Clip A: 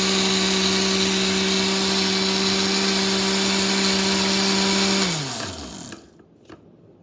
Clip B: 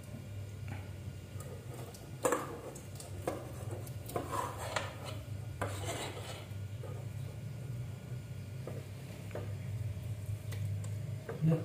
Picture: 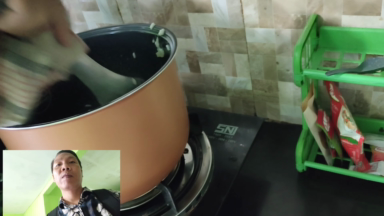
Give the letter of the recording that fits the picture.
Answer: B